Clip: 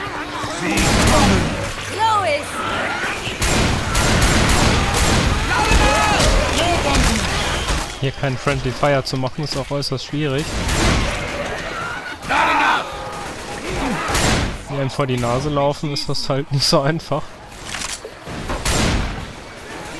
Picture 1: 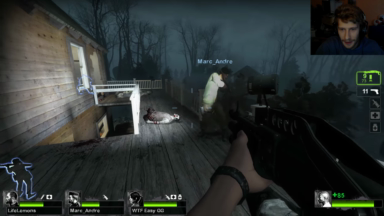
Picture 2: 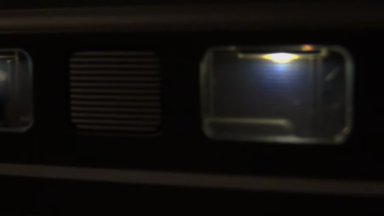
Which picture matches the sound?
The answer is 1